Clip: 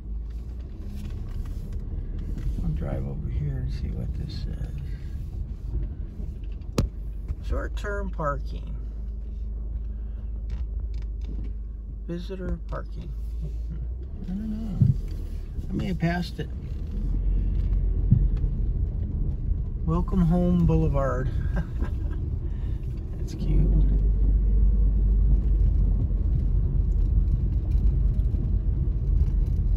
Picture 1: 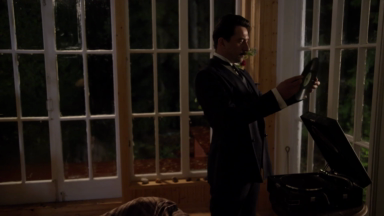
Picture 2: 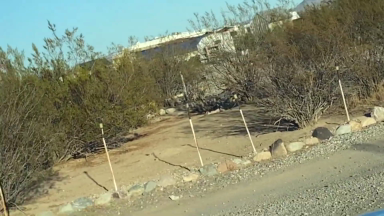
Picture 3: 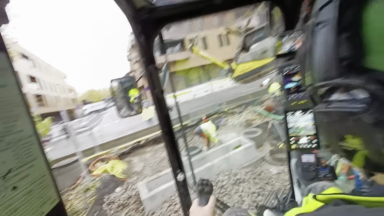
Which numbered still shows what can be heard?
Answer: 2